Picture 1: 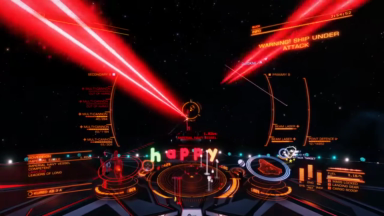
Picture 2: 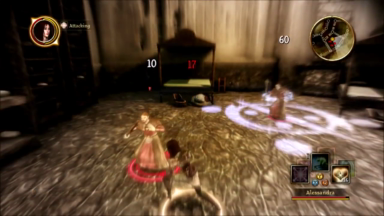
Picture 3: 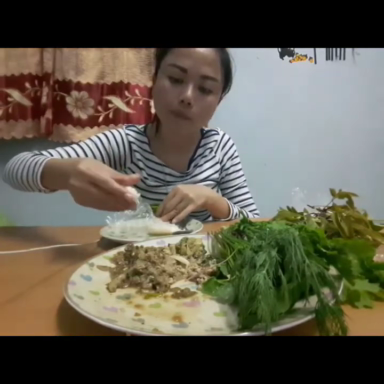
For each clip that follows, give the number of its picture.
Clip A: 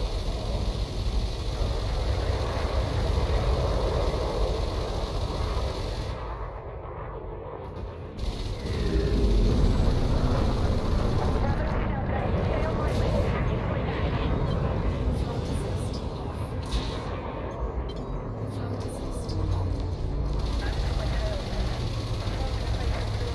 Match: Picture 1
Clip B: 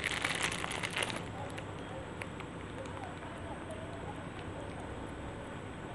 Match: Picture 3